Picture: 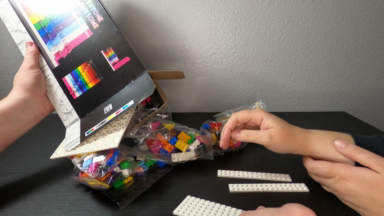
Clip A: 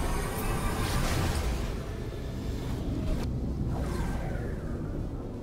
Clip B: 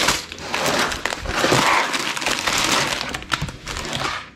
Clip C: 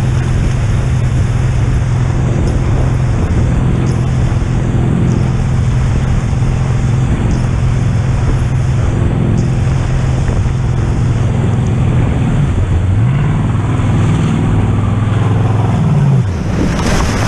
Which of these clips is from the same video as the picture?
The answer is B